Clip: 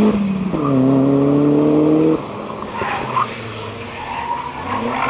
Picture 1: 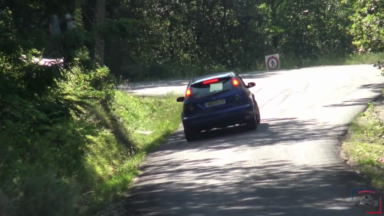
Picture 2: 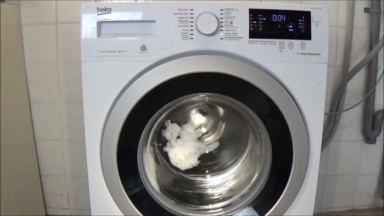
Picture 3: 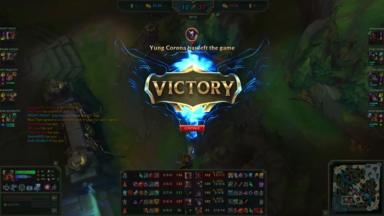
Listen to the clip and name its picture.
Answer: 1